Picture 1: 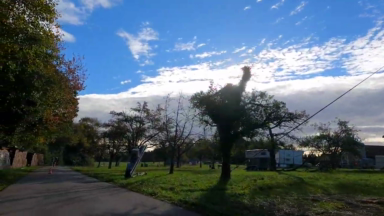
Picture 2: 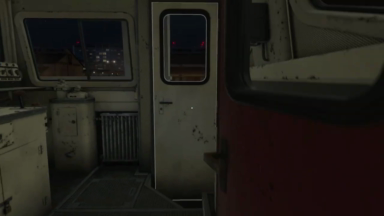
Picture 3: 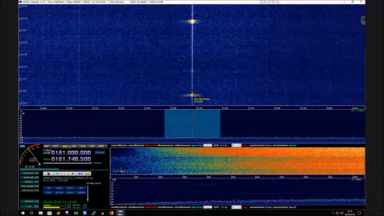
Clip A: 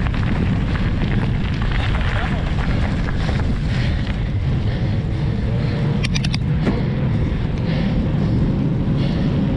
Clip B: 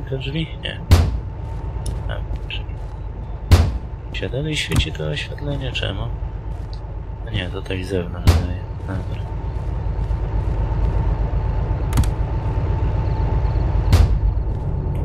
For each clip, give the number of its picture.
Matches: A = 1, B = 2